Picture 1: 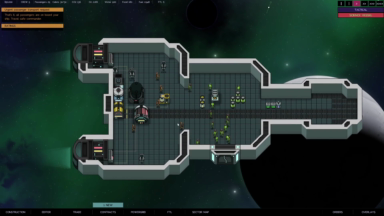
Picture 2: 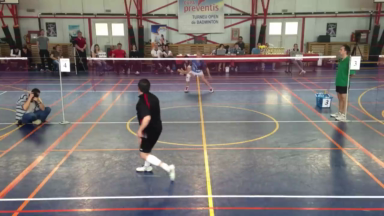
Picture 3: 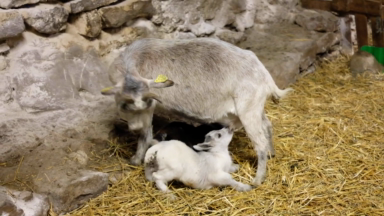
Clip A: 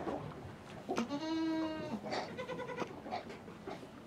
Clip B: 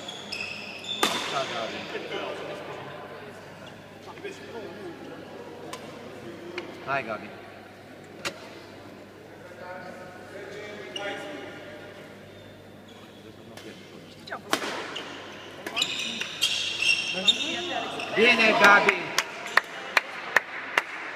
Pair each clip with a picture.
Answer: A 3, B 2